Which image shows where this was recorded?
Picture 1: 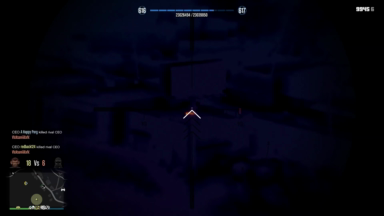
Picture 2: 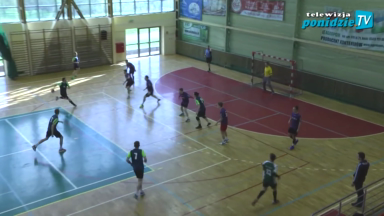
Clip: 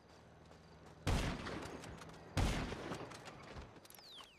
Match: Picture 1